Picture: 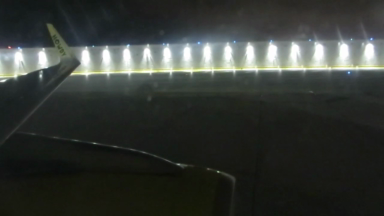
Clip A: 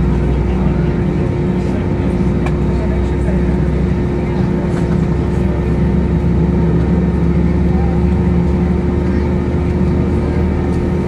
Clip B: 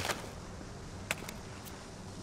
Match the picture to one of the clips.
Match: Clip A